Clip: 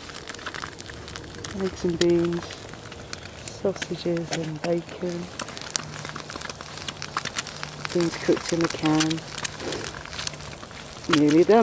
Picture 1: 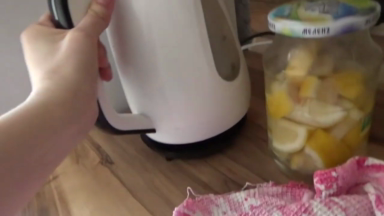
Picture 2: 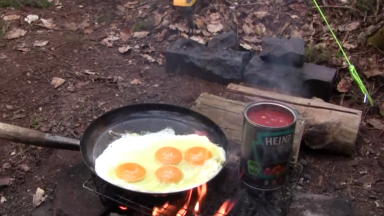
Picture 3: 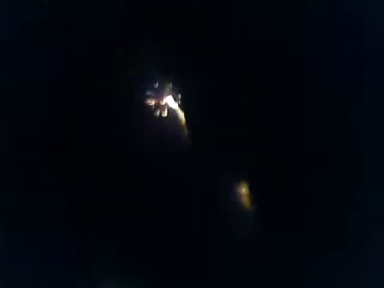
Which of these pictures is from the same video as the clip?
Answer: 2